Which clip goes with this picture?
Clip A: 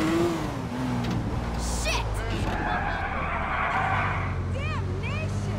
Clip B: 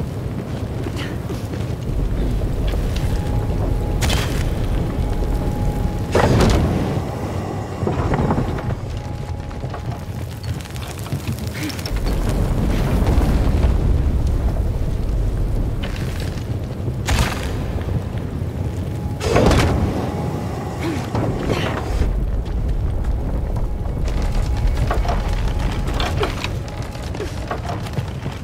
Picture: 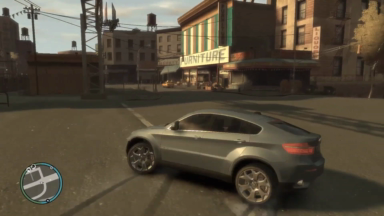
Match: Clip A